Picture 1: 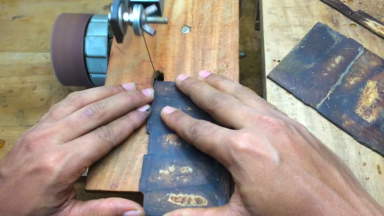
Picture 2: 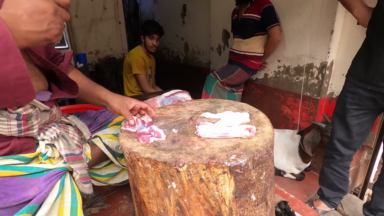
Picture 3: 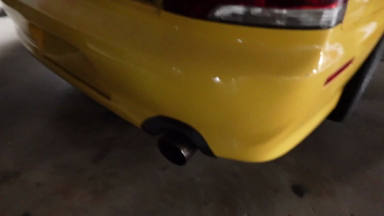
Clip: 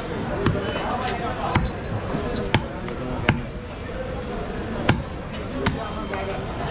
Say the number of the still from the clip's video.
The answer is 2